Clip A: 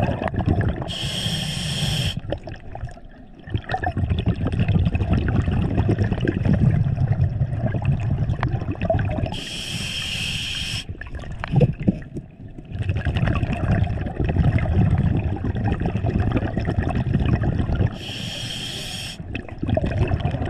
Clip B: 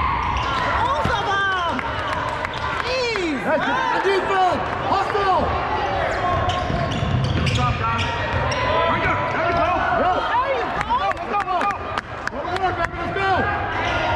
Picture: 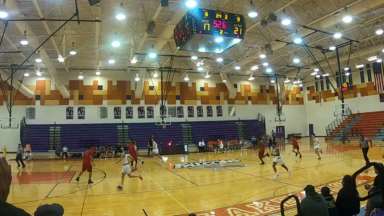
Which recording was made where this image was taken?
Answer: B